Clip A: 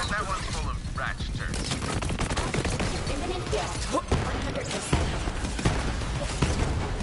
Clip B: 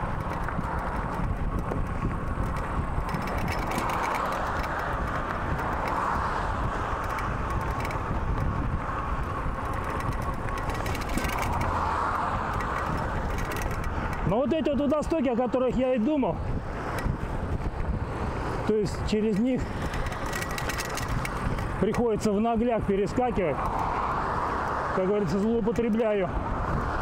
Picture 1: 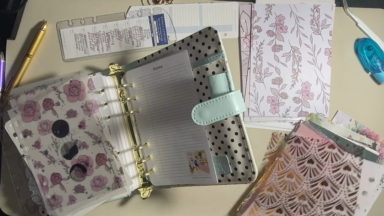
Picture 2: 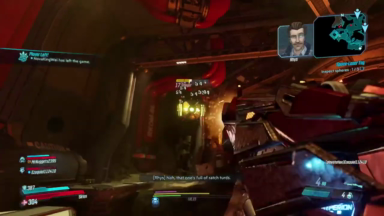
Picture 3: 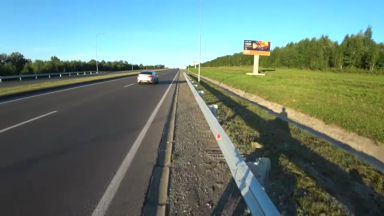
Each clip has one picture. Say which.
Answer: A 2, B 3